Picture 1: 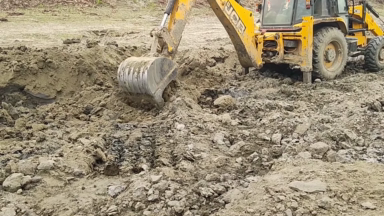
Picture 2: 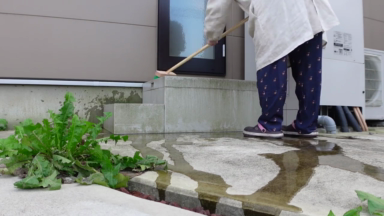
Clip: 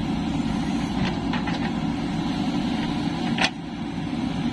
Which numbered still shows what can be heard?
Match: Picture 1